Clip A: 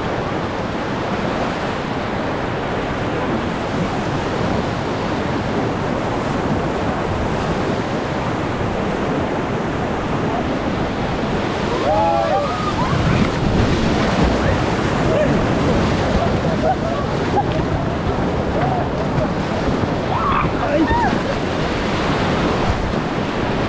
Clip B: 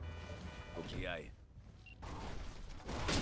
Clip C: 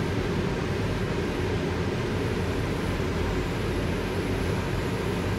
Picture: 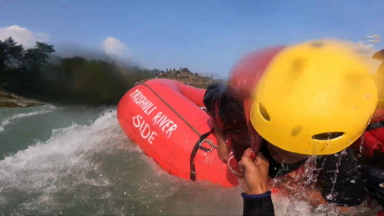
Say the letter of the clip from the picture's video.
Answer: A